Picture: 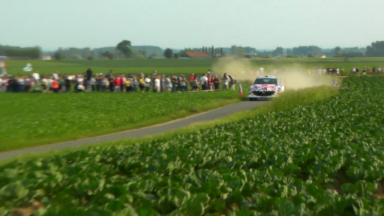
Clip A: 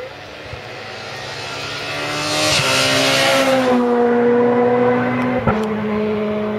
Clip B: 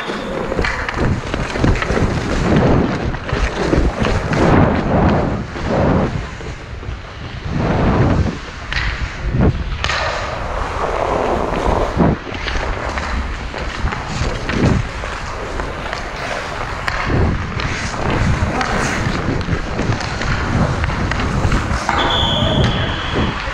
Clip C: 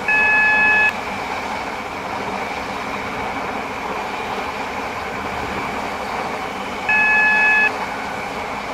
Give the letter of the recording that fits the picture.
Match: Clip A